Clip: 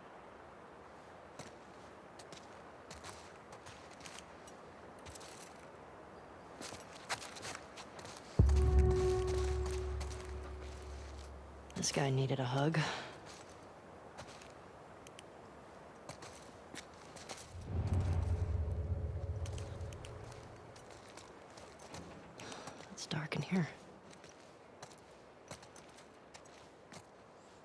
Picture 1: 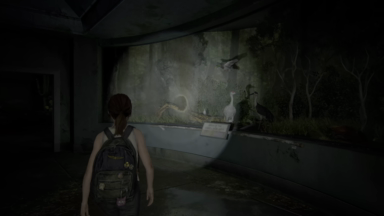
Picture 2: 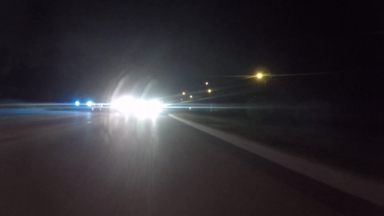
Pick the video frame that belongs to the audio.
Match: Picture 1